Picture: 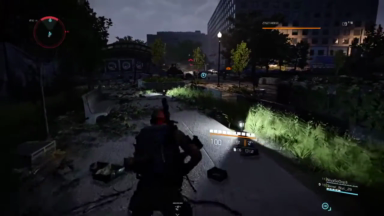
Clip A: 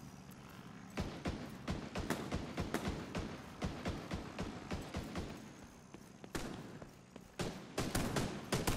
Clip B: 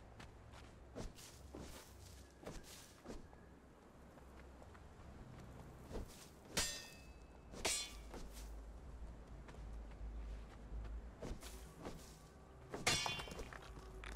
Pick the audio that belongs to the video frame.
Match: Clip A